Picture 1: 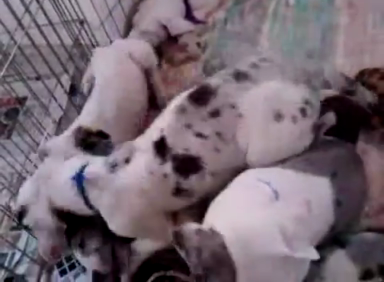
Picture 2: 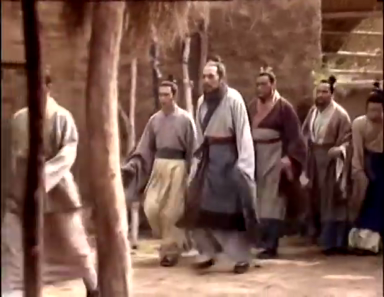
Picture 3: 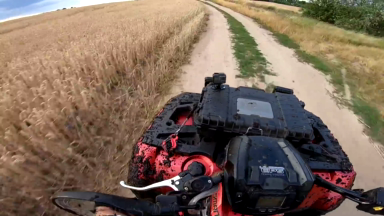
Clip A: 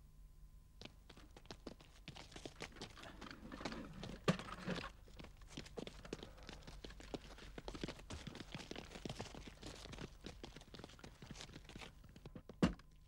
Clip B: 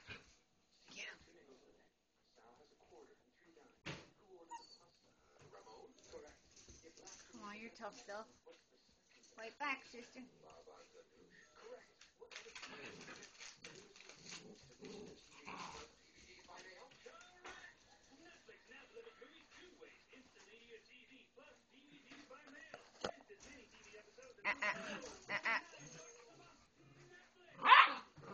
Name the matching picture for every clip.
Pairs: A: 2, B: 1